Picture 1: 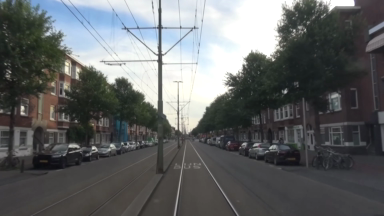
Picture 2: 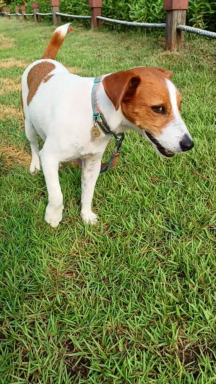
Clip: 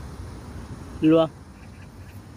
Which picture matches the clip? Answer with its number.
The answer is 2